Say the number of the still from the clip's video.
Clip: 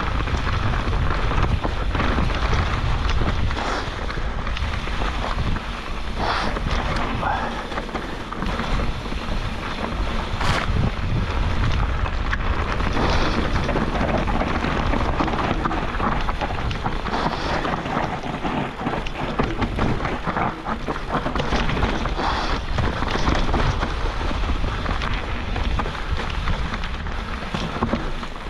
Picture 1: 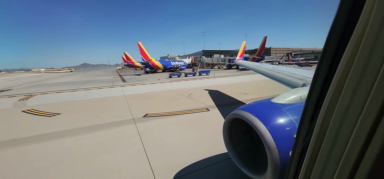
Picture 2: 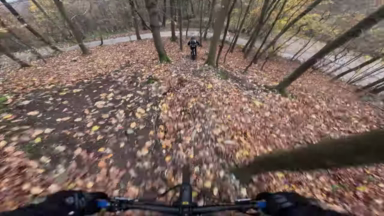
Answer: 2